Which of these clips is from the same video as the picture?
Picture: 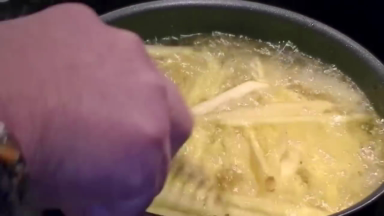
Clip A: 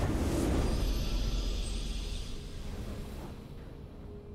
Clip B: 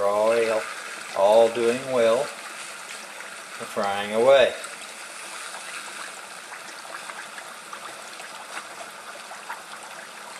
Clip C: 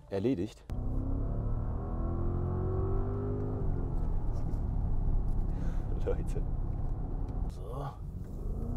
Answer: B